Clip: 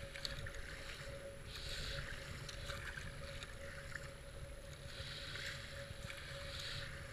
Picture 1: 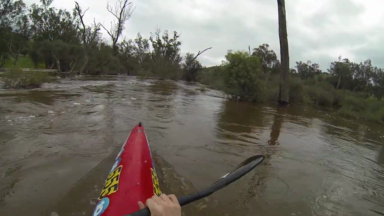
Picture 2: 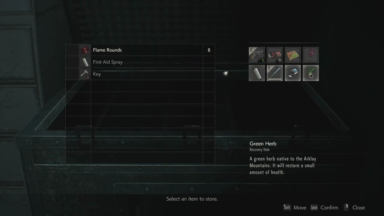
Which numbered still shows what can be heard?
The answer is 1